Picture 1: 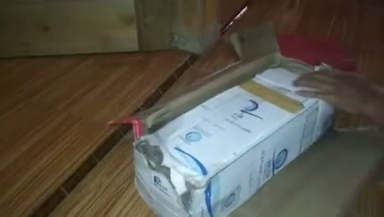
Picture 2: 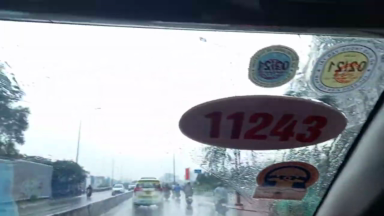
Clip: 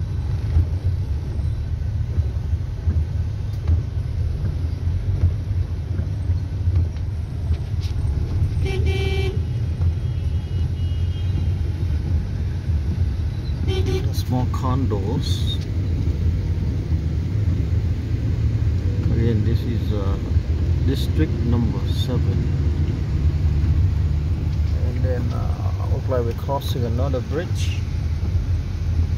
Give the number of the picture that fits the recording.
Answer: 2